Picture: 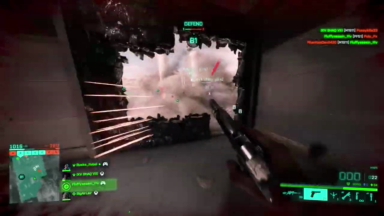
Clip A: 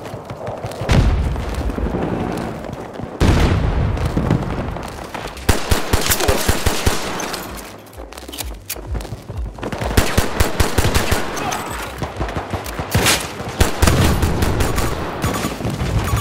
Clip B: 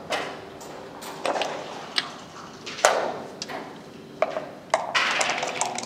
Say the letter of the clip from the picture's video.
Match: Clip A